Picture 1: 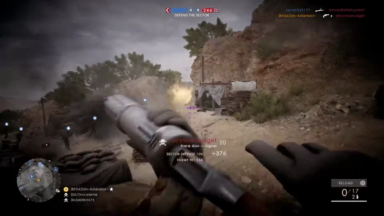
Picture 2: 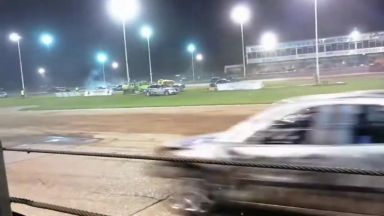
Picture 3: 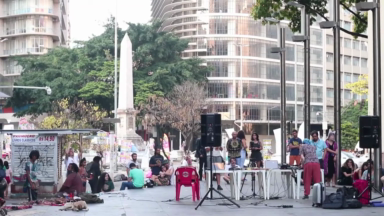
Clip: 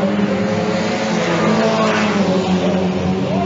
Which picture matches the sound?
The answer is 2